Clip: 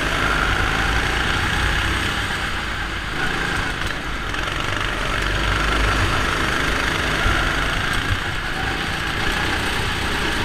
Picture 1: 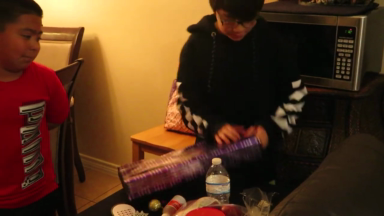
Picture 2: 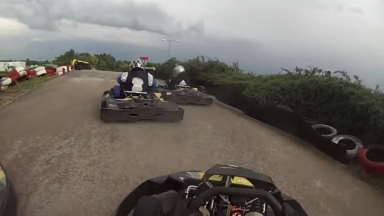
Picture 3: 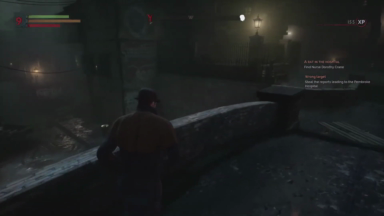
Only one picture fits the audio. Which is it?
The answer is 2